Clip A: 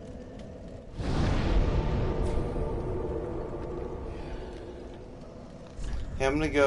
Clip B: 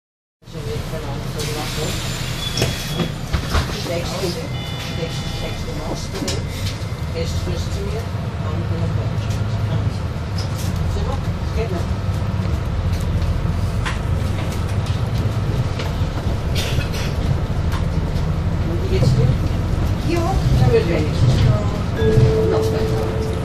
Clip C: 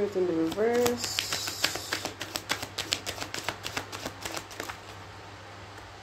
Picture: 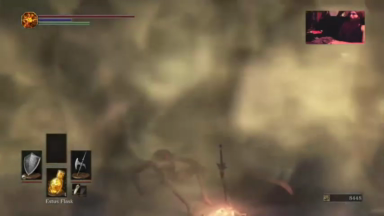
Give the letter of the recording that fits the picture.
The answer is A